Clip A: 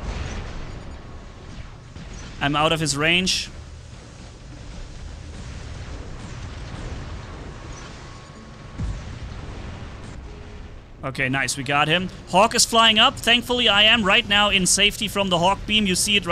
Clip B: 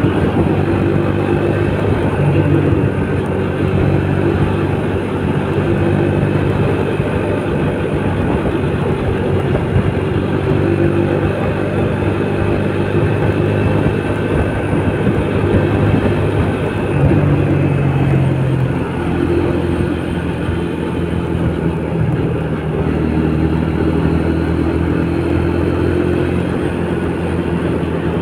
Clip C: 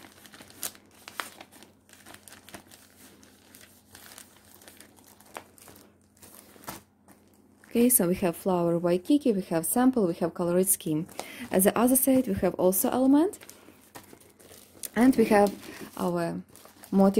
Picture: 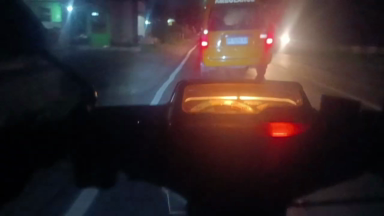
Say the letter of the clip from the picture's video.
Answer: B